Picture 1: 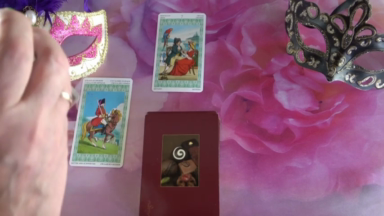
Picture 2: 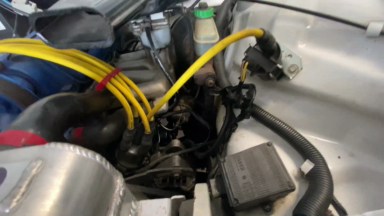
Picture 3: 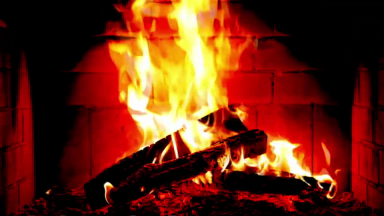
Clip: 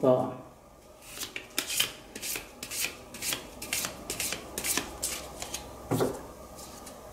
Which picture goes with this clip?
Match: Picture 1